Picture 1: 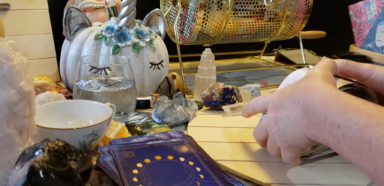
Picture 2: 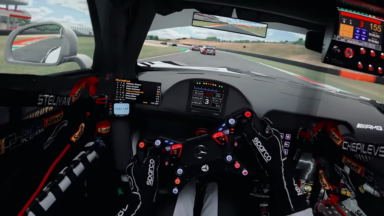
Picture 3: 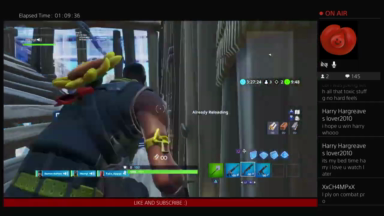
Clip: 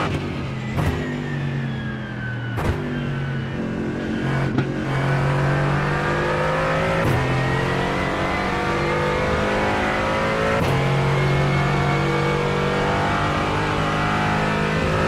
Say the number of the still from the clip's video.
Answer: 2